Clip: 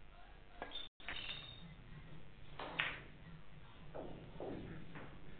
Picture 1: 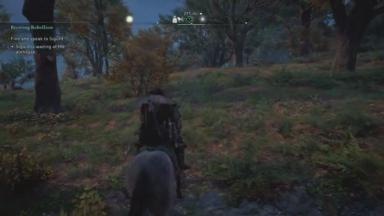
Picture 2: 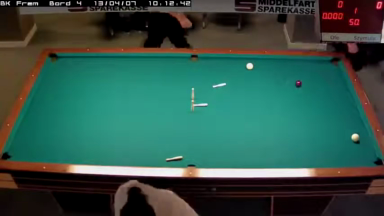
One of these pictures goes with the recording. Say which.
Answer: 2